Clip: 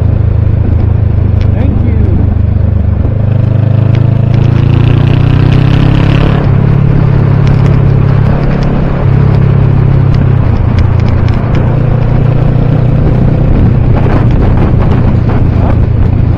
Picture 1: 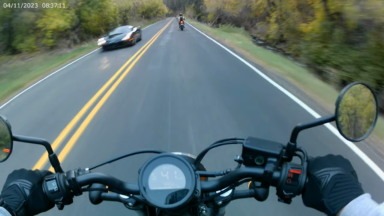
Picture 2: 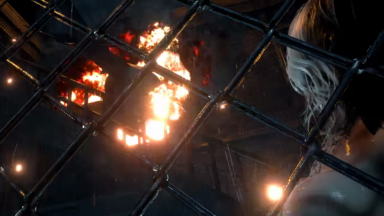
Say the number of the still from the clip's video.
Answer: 1